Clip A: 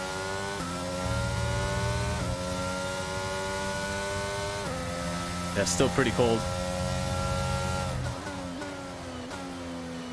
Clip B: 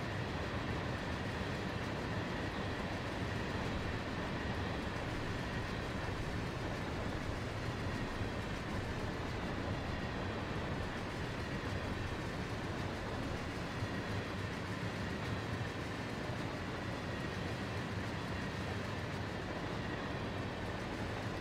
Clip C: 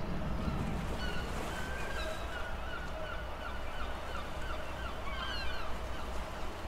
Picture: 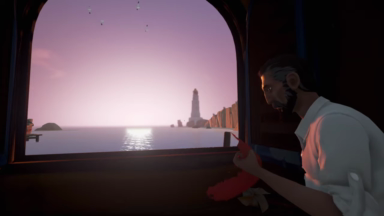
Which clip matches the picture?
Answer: C